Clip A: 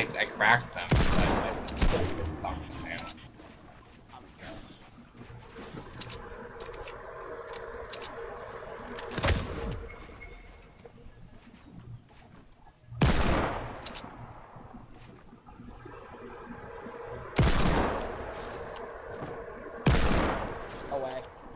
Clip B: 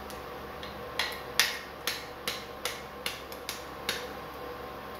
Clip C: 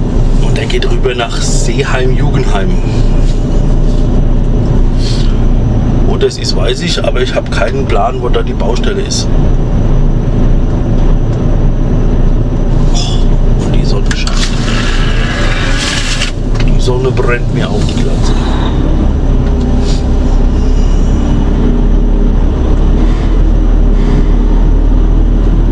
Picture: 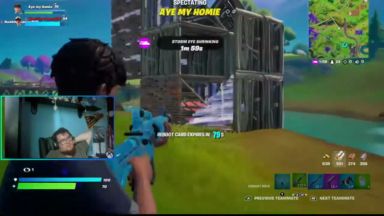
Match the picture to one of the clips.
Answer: A